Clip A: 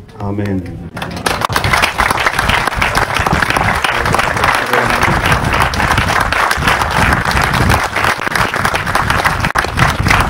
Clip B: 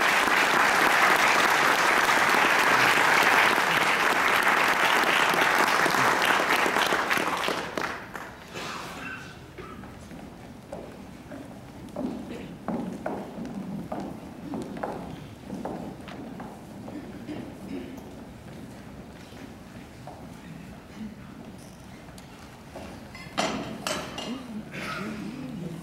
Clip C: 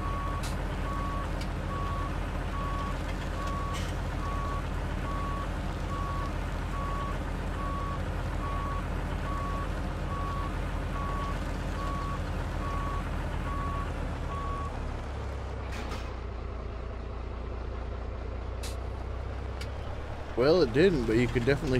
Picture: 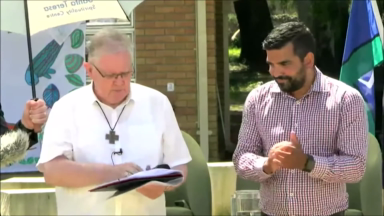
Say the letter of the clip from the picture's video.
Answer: A